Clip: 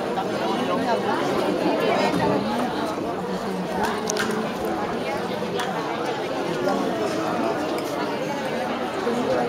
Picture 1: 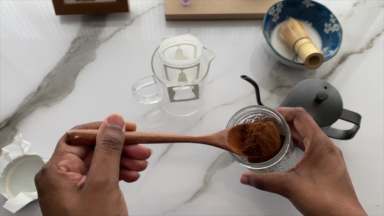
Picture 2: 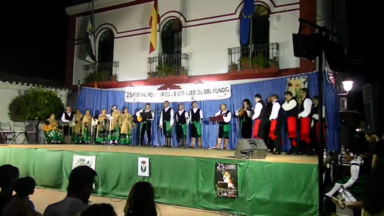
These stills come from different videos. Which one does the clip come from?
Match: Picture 2